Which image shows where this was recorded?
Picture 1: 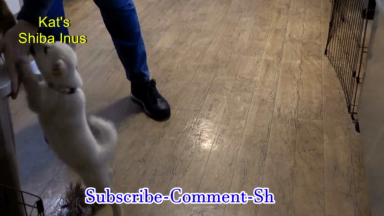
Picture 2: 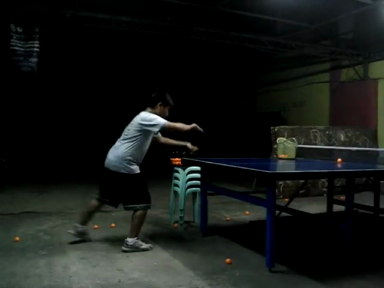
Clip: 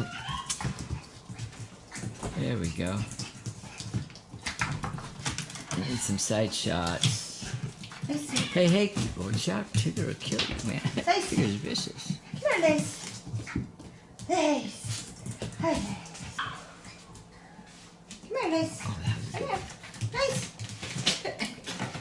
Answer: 1